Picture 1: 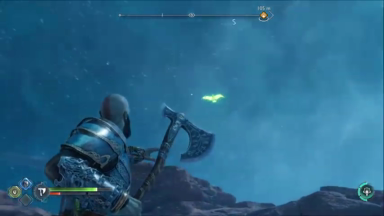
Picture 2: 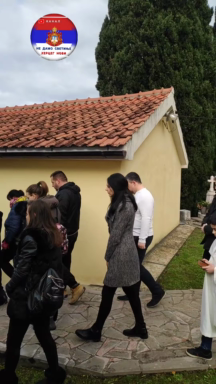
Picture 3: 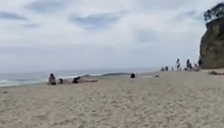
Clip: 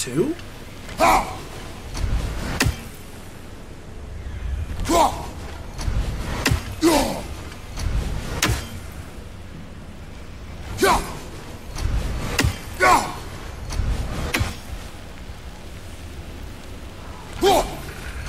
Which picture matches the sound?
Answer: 1